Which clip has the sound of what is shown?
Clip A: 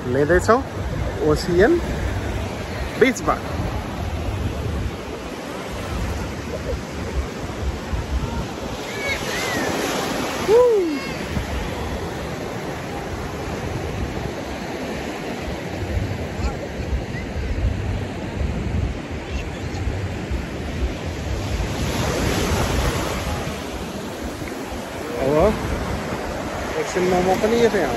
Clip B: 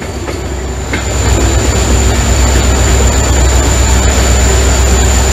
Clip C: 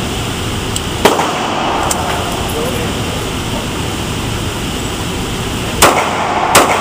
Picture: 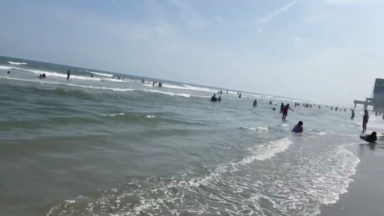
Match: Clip A